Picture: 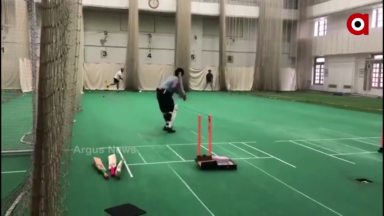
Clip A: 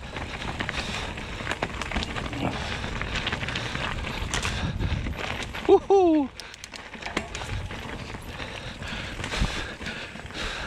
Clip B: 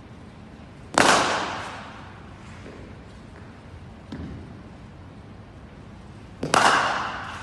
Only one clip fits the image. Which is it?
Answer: B